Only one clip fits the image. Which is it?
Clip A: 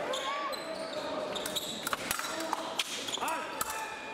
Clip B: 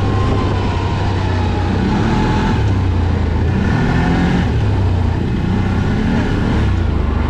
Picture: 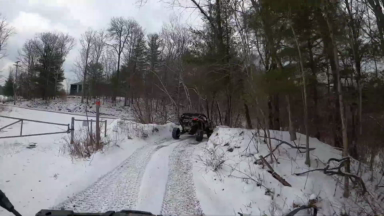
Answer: B